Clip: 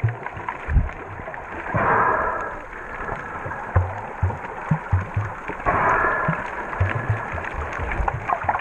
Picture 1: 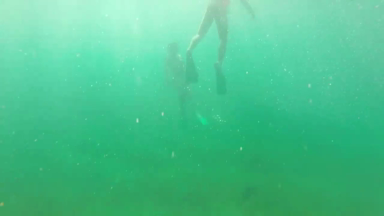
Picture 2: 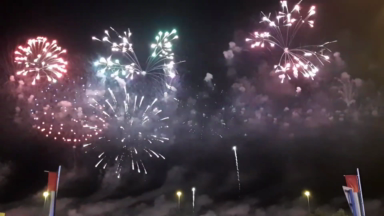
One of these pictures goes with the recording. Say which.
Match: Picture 1